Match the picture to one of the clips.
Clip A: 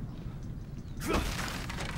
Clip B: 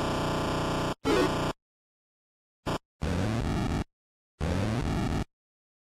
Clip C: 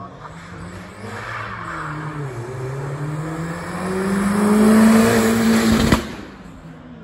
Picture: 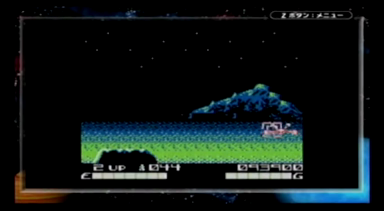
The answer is B